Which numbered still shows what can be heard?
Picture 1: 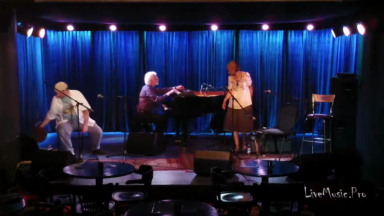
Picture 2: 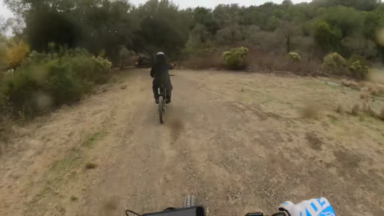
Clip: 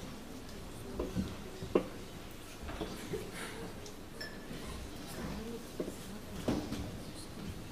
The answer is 1